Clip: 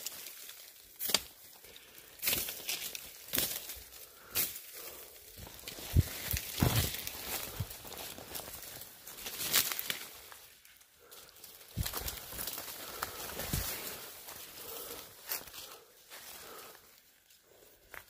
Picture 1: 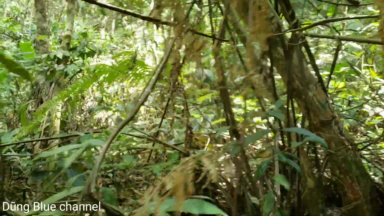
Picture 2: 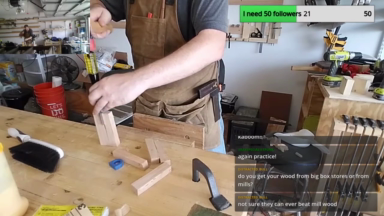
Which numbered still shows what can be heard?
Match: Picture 1